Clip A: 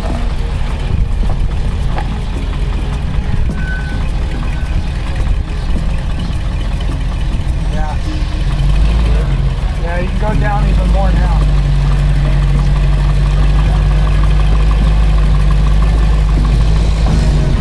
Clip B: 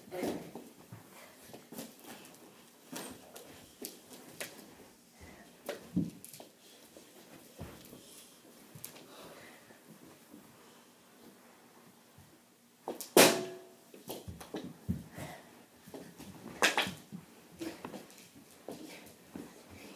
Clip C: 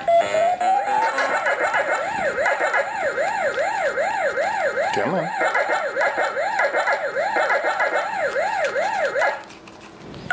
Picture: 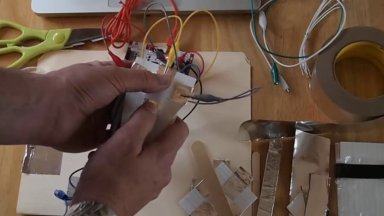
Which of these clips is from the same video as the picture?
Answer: C